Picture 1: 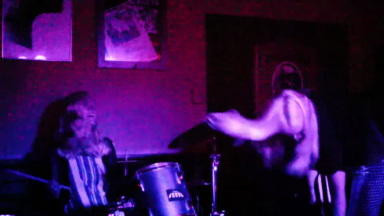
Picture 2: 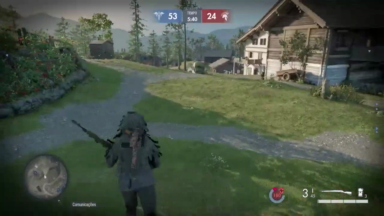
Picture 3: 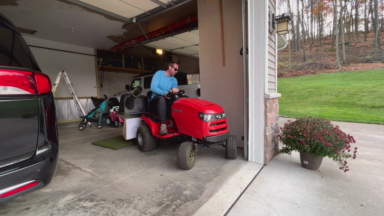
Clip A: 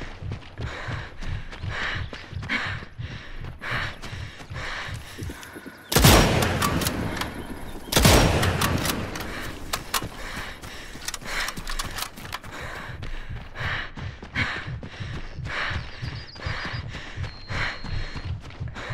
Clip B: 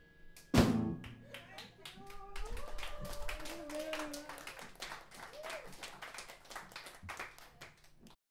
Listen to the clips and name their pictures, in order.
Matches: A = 2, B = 1